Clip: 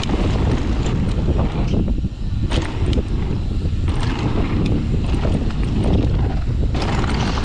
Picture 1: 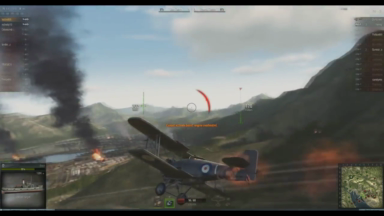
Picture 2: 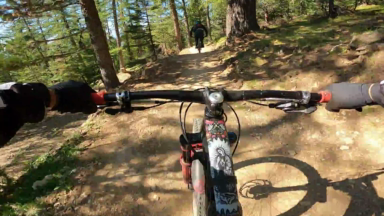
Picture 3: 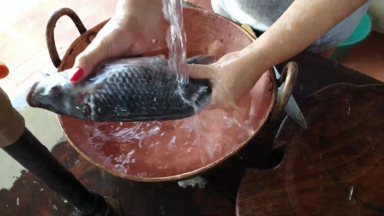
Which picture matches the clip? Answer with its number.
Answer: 2